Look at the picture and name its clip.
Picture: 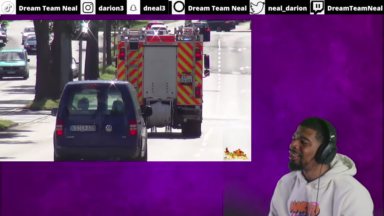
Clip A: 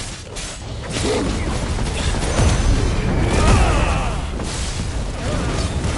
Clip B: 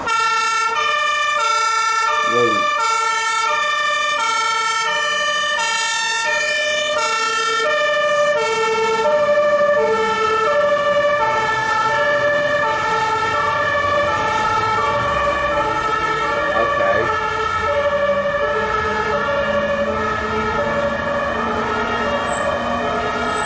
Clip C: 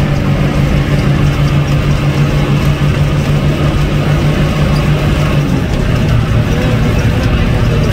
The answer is B